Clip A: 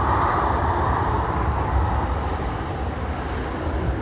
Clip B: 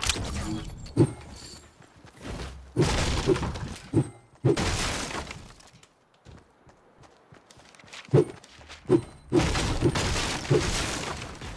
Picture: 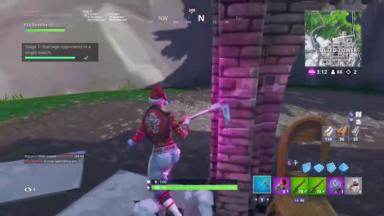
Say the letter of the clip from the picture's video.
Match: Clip B